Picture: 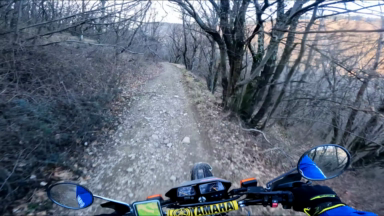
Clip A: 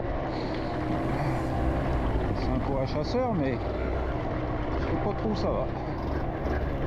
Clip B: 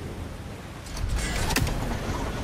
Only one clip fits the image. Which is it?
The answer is A